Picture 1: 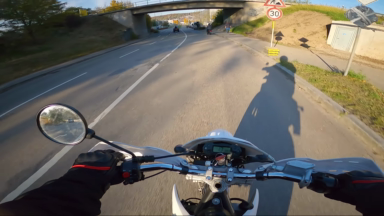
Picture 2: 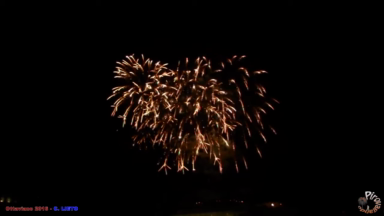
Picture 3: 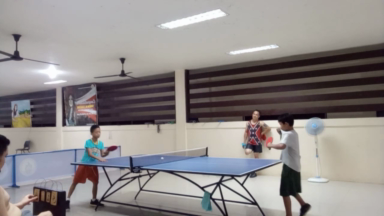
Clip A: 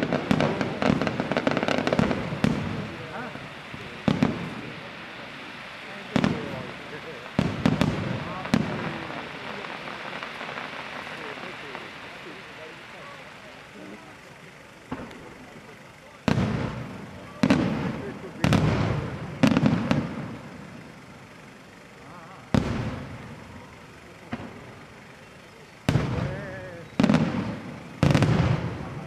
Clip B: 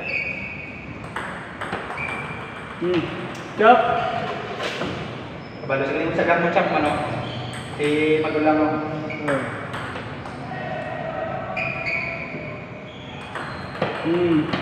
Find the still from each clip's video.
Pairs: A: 2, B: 3